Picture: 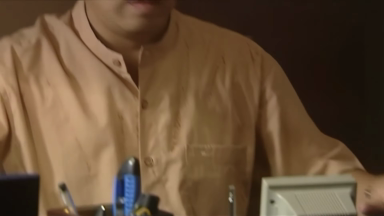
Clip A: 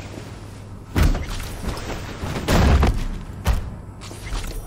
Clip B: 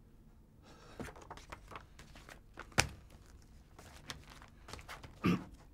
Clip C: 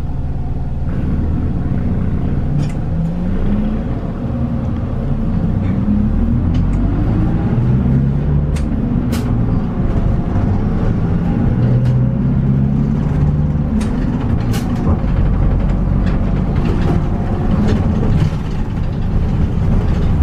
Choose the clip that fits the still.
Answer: B